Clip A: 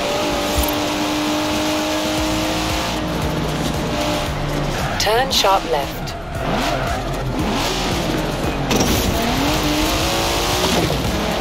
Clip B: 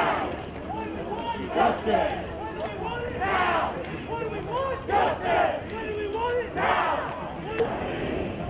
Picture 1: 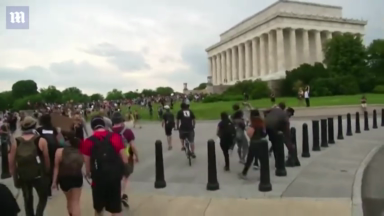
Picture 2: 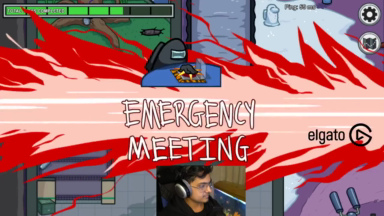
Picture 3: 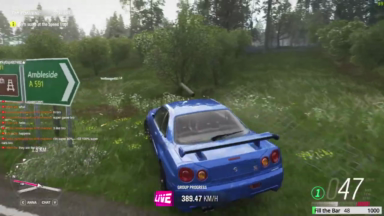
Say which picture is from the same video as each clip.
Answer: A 3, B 1